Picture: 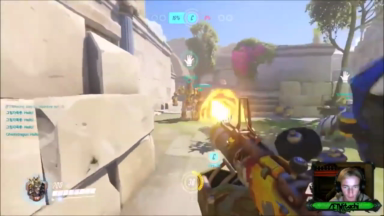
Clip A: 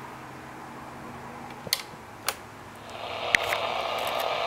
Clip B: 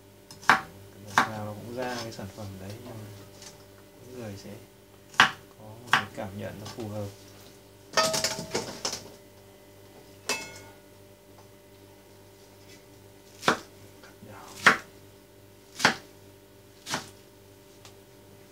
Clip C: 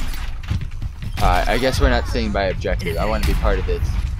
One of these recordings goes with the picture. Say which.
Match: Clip C